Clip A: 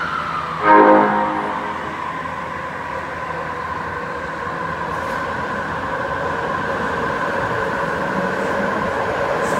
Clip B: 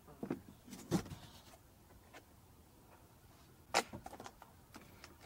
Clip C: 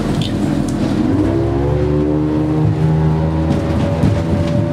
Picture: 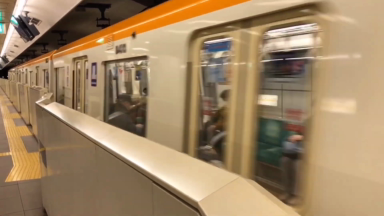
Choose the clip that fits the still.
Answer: A